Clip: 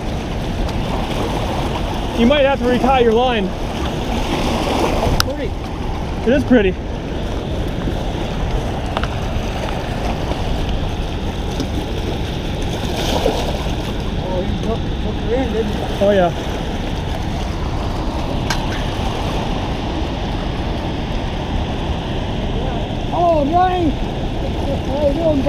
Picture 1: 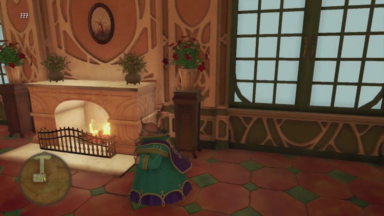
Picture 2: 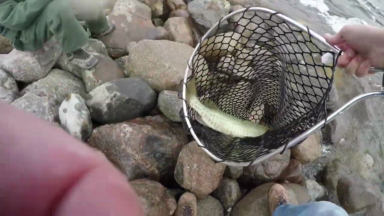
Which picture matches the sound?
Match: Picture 2